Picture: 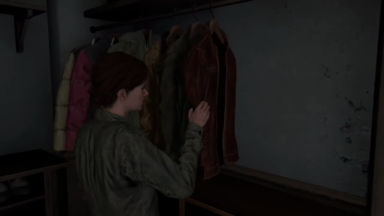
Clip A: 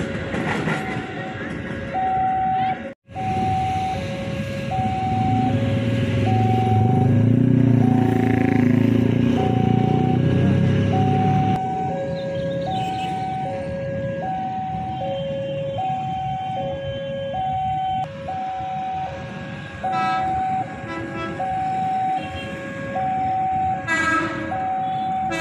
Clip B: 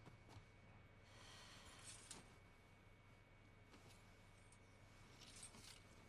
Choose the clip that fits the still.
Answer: B